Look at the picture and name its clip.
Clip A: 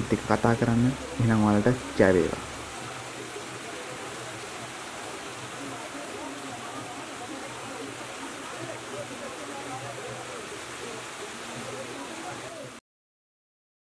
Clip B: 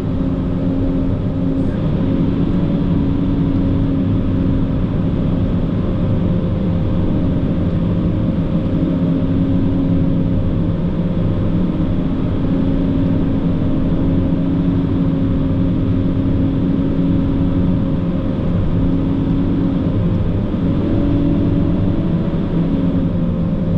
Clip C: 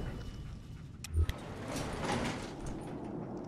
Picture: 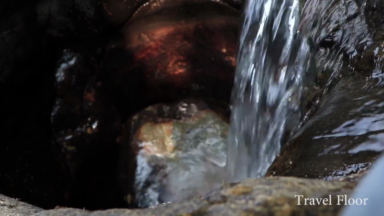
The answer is A